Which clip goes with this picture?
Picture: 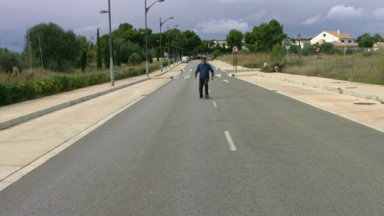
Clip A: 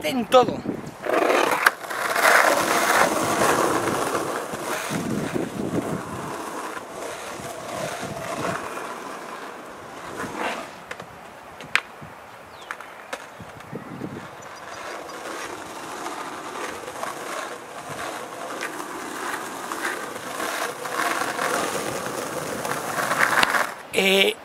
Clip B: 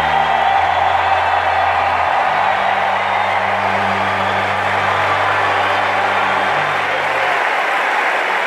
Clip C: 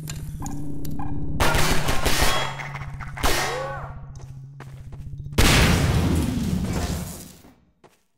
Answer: A